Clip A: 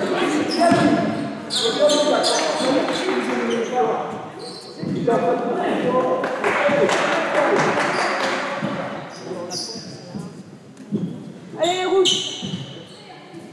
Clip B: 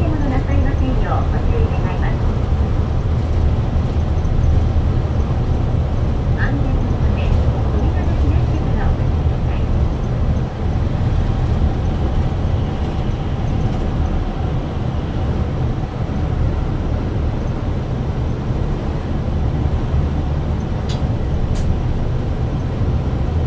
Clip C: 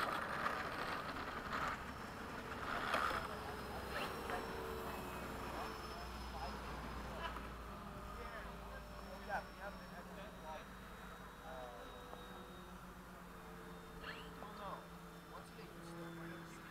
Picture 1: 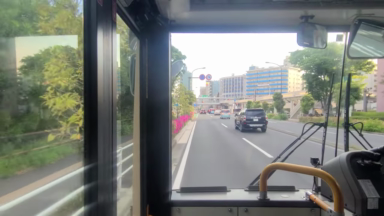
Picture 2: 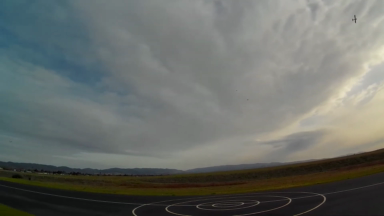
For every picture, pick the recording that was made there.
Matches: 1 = B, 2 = C